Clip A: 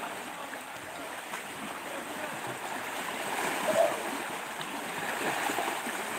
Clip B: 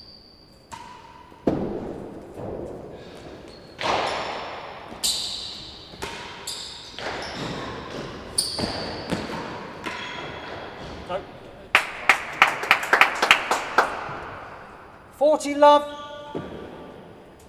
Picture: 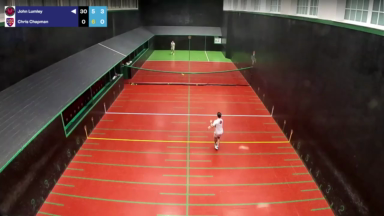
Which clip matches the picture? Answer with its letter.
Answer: B